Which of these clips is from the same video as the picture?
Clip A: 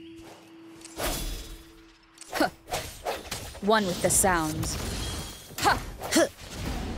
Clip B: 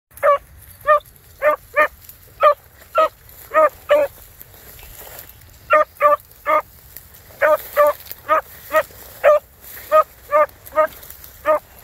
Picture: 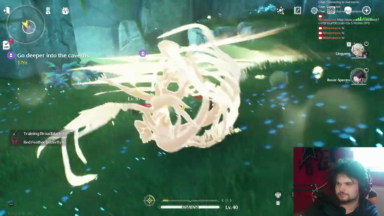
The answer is A